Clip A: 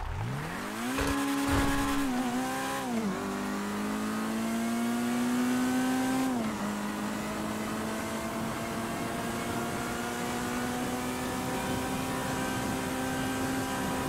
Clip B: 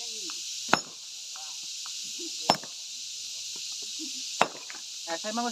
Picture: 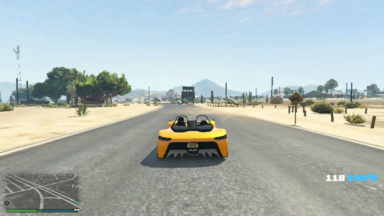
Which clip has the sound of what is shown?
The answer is A